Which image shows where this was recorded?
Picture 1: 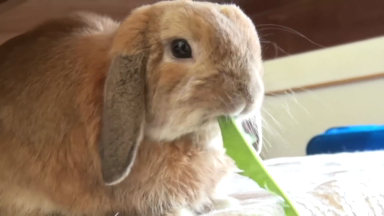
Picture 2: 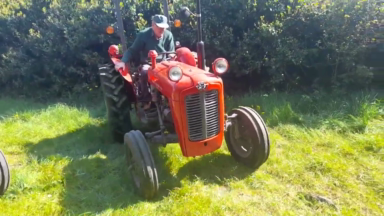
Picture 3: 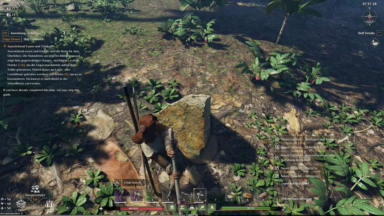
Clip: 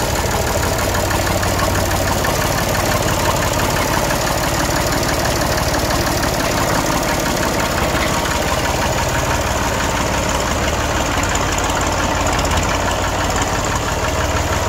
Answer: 2